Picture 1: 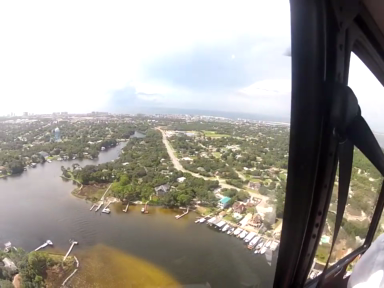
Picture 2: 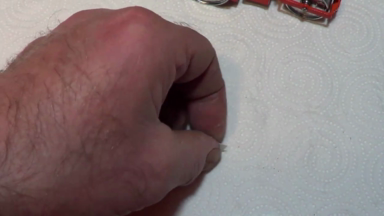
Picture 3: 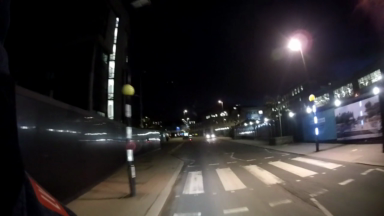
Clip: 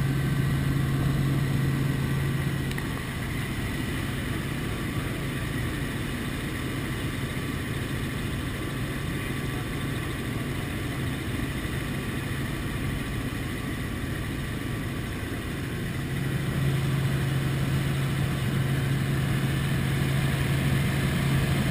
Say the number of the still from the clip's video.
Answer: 1